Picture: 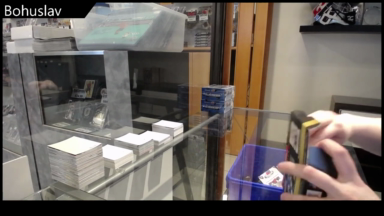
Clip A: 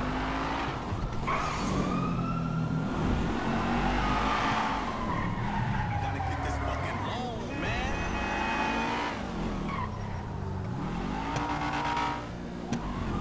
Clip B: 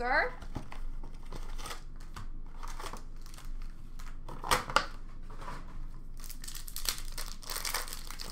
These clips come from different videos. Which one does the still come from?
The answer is B